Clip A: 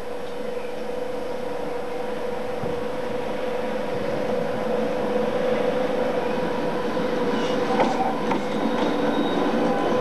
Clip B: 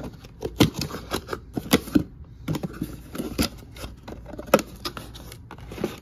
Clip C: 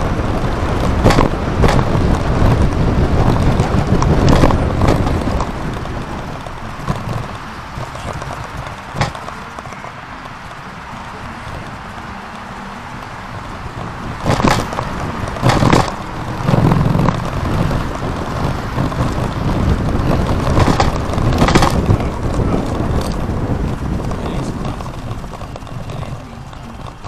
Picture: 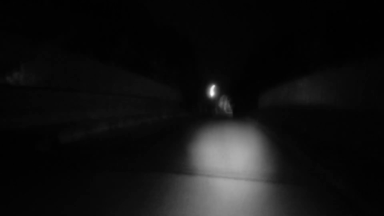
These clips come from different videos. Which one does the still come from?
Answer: C